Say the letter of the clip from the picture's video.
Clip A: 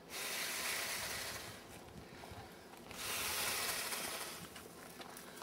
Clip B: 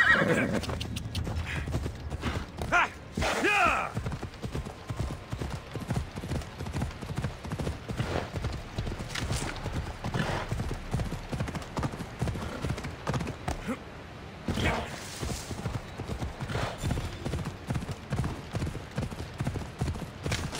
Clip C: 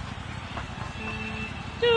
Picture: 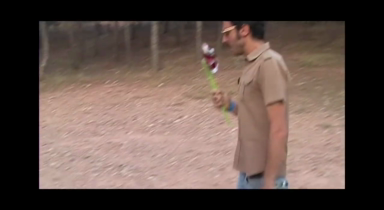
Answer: A